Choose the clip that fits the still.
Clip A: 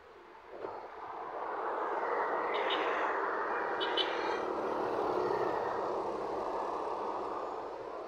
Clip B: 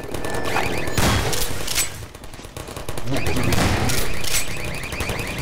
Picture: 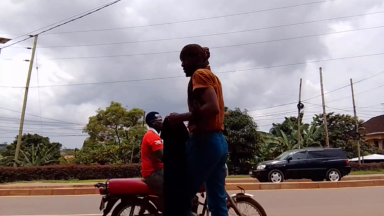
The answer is A